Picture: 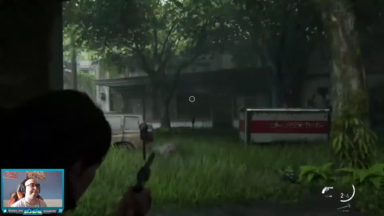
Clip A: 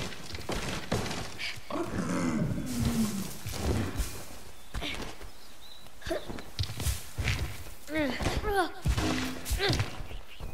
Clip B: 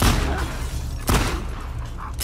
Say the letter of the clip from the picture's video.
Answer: B